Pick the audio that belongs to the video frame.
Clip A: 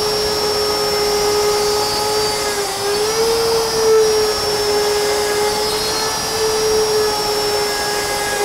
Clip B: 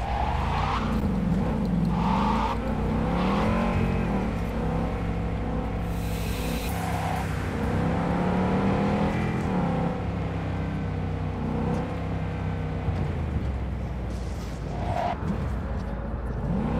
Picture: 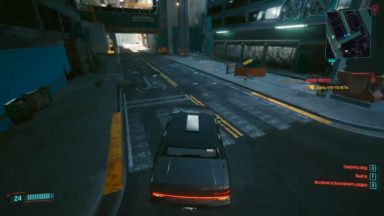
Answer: B